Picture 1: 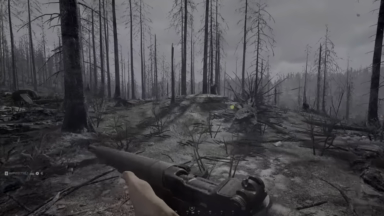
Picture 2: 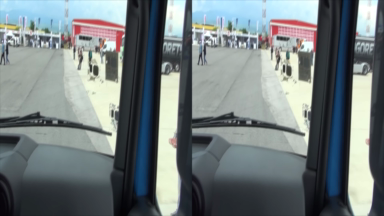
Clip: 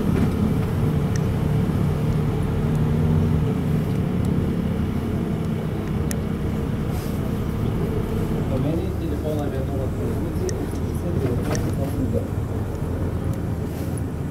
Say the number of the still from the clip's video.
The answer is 2